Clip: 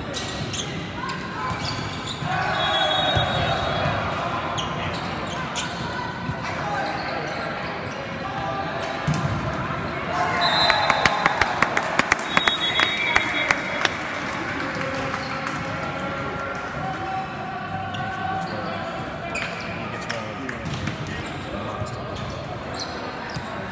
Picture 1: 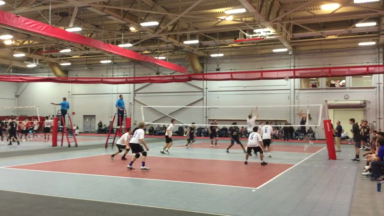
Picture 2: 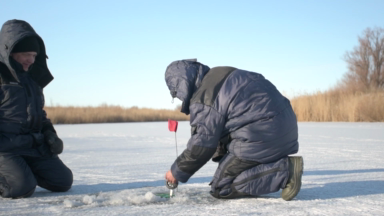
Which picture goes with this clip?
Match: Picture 1